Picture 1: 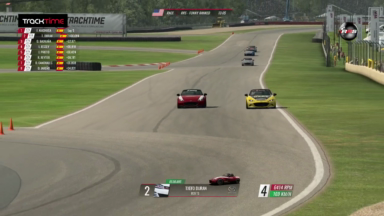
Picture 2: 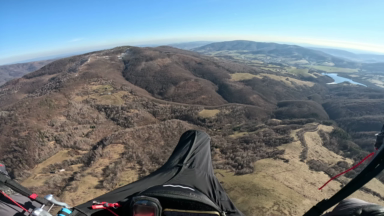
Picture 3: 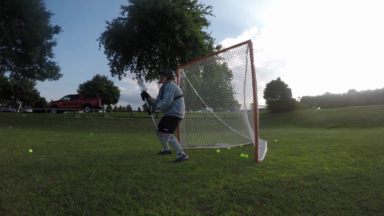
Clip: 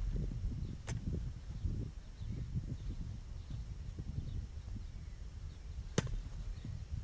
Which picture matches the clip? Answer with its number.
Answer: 3